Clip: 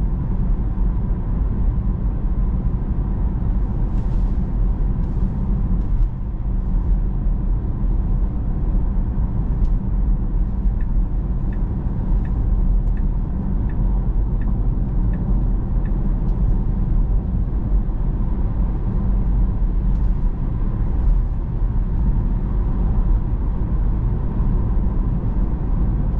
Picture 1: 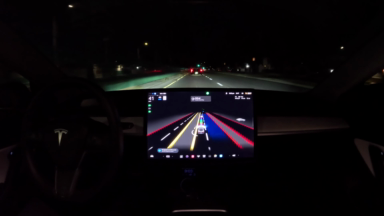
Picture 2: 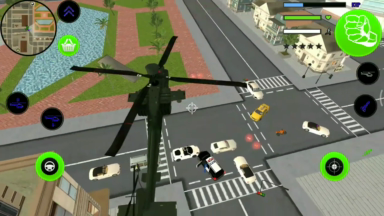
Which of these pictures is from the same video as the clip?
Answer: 1